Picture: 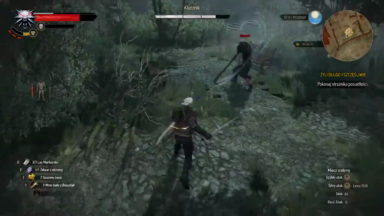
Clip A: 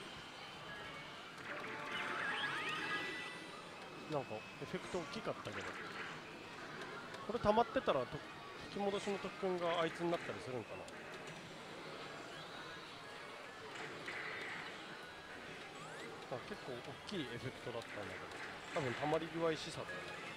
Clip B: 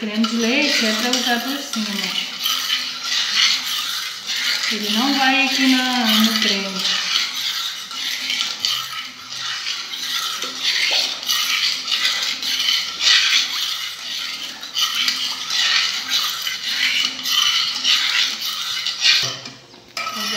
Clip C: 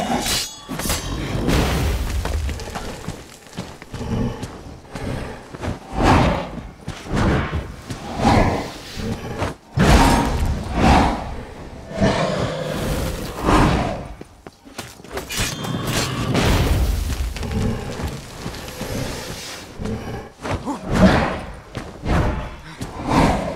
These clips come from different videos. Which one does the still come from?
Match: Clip C